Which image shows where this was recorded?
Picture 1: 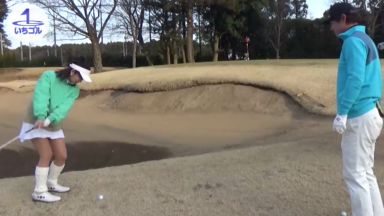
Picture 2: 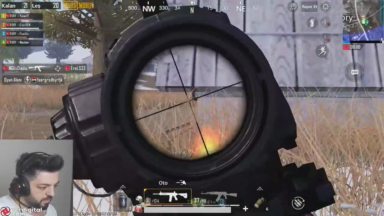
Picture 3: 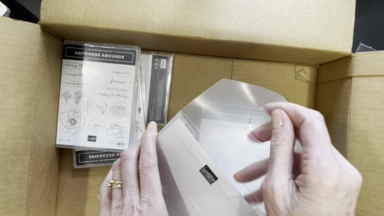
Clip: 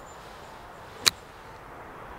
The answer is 1